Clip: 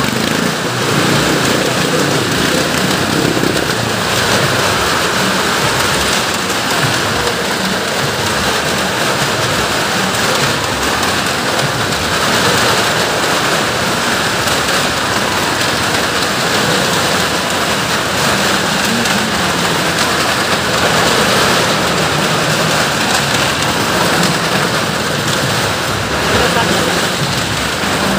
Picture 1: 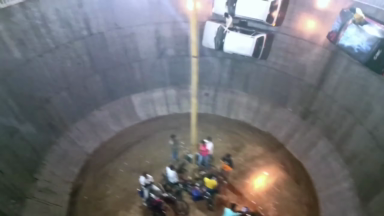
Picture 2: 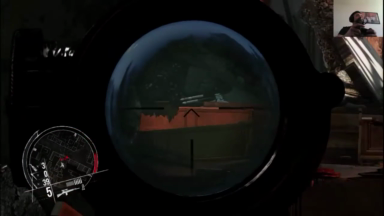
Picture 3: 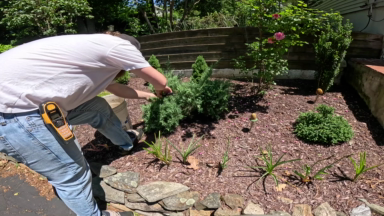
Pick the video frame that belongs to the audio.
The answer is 1